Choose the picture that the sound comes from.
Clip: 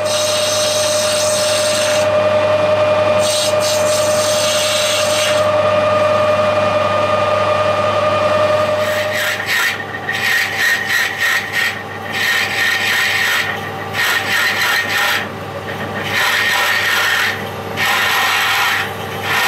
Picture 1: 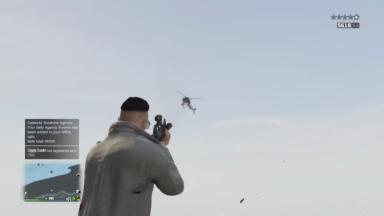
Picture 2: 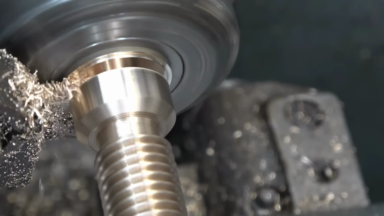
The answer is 2